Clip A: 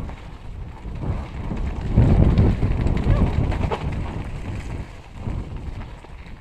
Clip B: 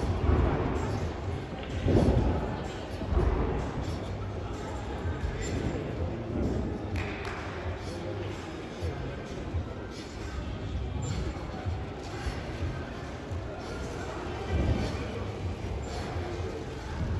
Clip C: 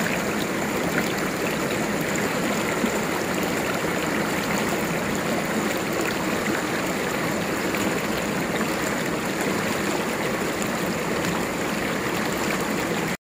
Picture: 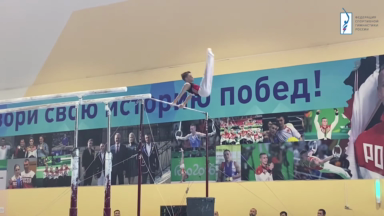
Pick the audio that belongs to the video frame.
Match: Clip B